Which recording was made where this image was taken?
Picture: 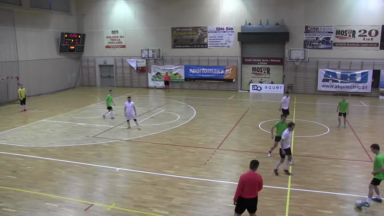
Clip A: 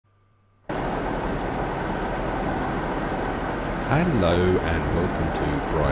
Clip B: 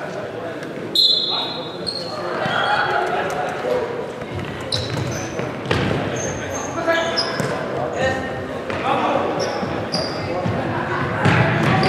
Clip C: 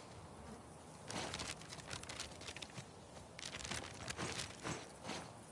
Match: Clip B